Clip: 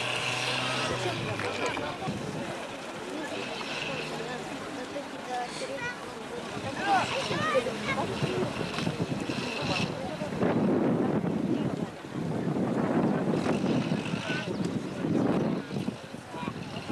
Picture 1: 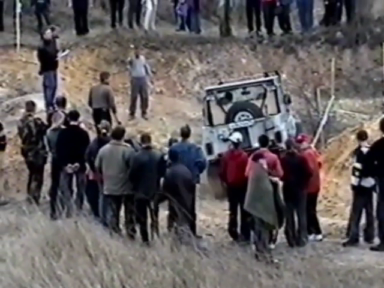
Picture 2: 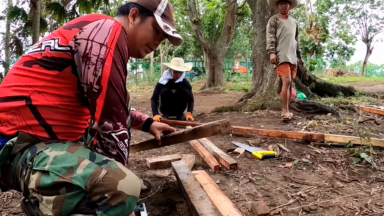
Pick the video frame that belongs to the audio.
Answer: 1